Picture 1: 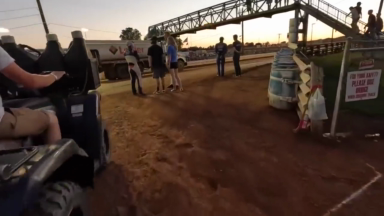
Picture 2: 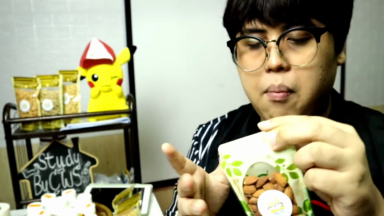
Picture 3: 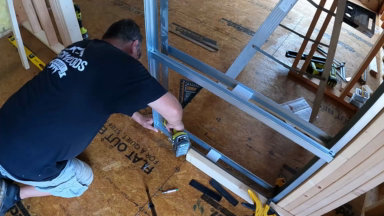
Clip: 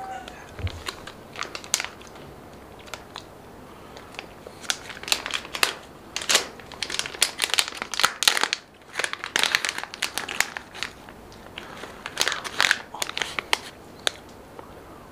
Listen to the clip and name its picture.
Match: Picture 2